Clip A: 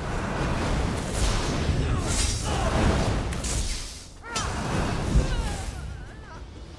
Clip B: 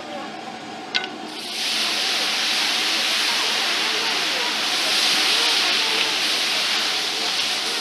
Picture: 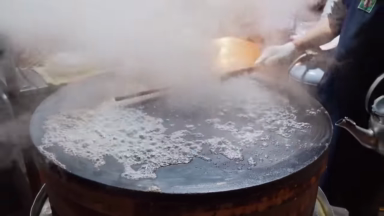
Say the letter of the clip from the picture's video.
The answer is B